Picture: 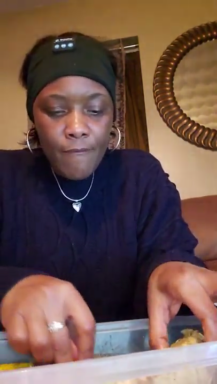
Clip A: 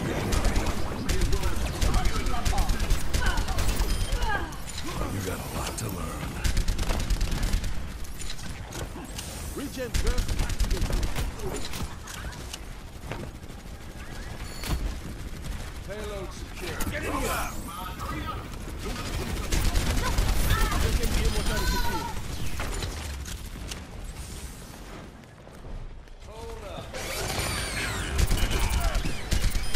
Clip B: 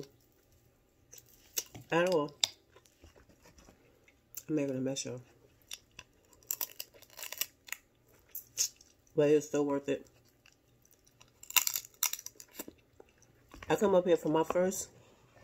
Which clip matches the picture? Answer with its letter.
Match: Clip B